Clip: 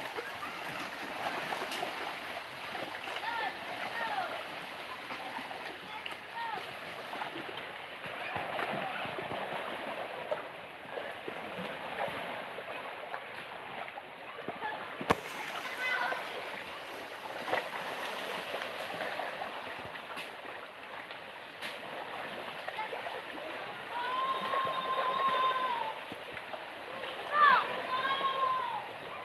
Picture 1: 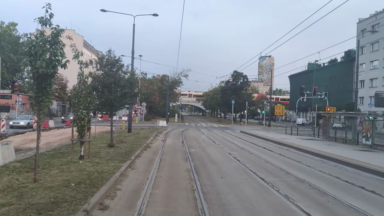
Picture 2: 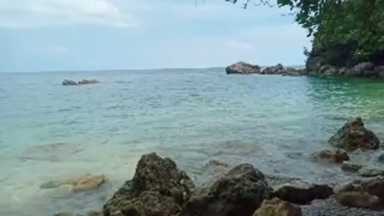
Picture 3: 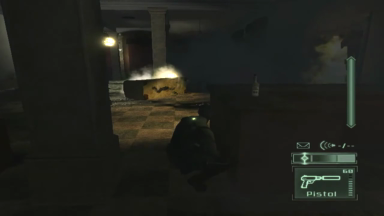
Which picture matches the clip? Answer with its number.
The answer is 2